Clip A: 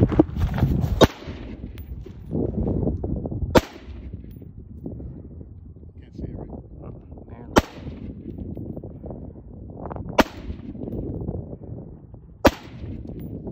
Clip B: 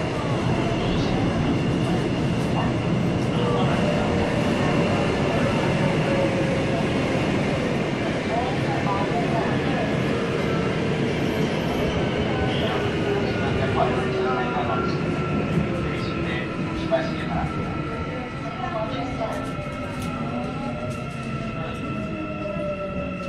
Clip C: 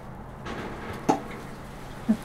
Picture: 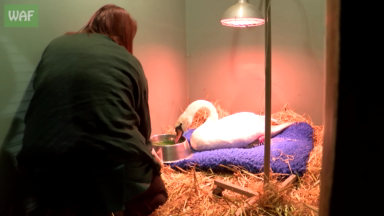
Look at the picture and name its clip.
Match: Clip C